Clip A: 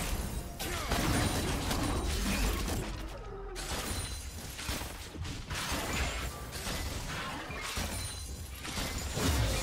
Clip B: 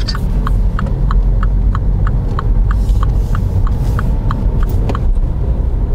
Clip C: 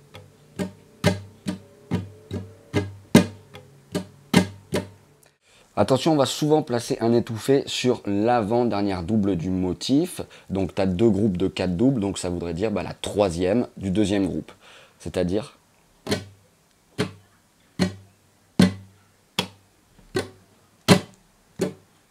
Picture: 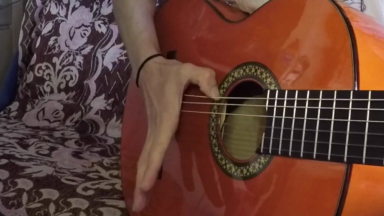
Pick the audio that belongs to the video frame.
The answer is C